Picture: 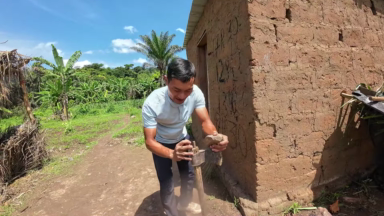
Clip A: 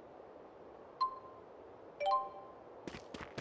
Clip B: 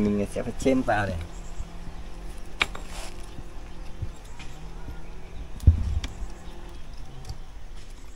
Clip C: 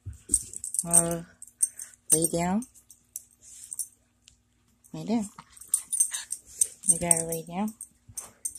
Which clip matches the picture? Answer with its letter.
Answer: B